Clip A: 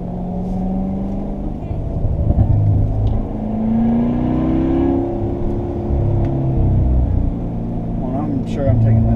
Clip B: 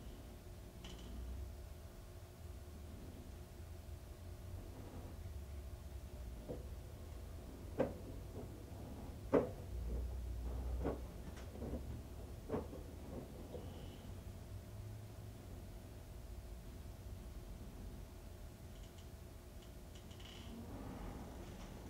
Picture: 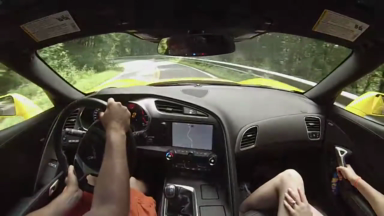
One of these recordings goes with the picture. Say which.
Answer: A